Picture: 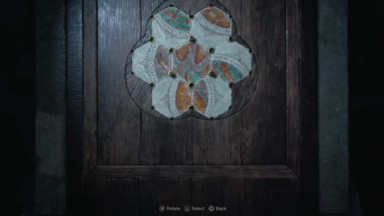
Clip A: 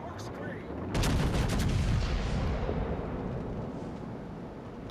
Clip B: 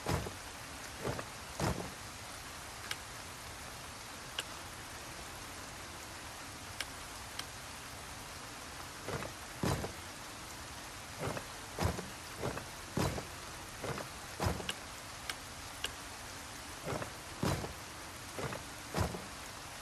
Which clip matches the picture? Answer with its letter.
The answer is B